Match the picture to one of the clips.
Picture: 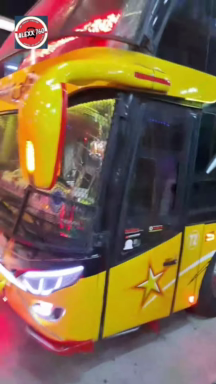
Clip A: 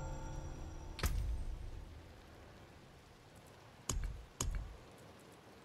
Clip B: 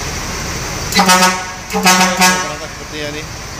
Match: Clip B